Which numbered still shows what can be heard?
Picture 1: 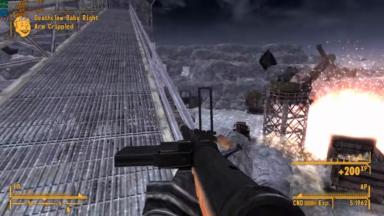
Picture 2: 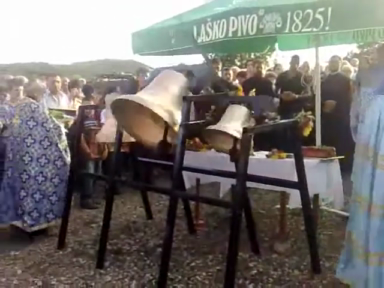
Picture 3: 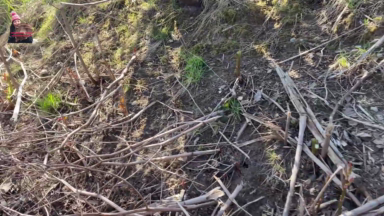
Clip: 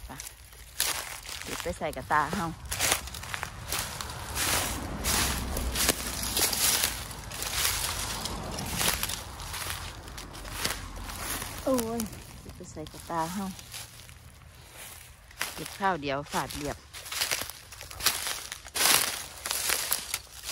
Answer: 3